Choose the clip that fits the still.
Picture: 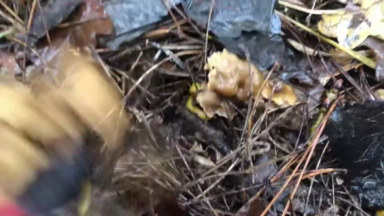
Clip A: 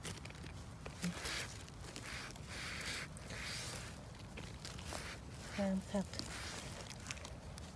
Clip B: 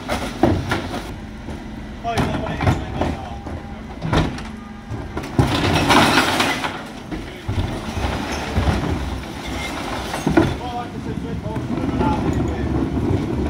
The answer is A